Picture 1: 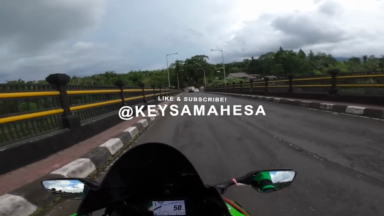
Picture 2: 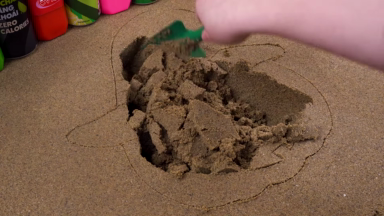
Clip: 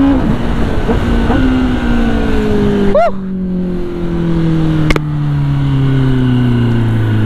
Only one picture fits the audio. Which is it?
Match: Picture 1